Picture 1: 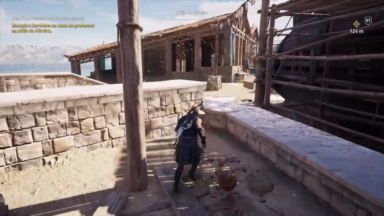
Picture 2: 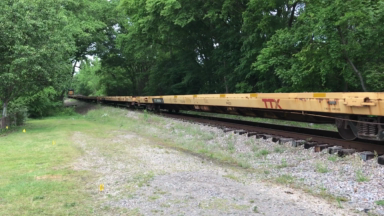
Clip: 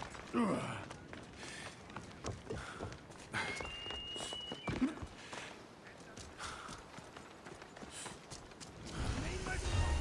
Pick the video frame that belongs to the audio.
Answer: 1